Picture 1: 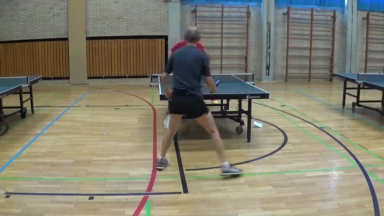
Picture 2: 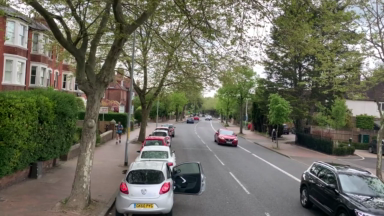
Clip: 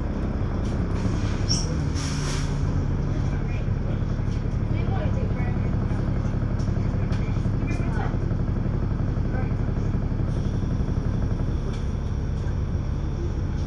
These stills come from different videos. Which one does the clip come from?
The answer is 2